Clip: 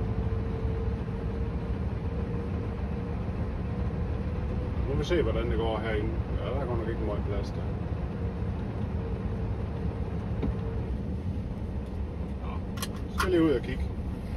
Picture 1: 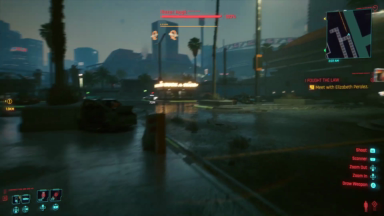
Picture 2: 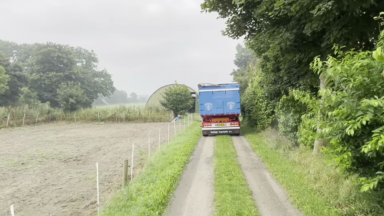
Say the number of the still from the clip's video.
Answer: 2